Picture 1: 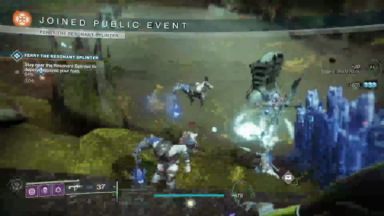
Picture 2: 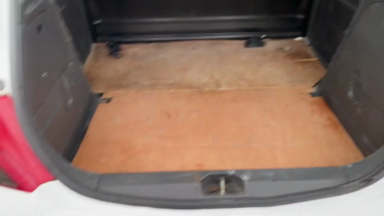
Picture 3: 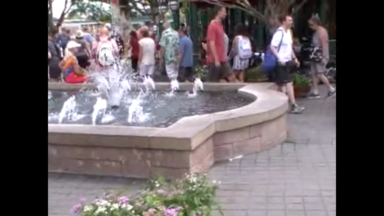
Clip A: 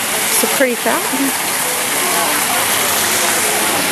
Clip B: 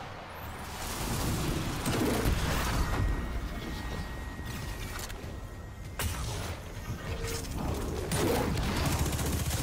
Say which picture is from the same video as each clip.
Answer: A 3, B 1